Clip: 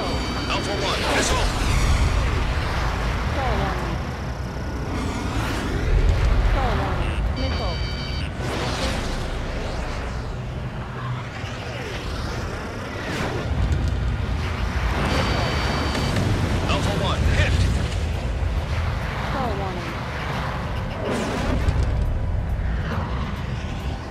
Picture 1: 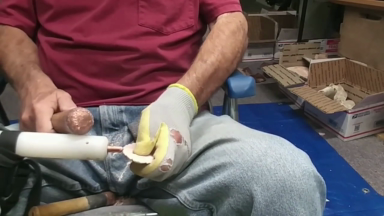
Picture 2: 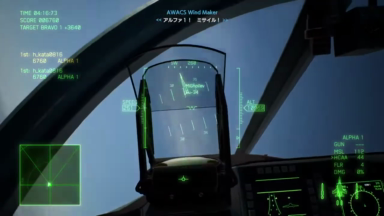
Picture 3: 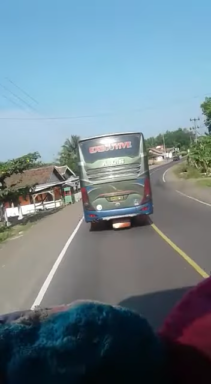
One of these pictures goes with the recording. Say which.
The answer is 2